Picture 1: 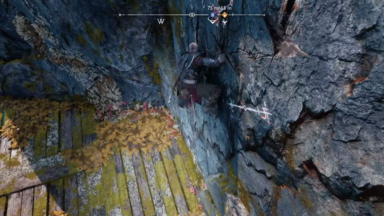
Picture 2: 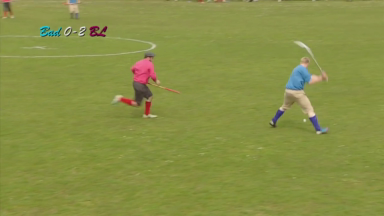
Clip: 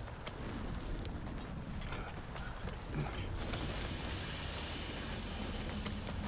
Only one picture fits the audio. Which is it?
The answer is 1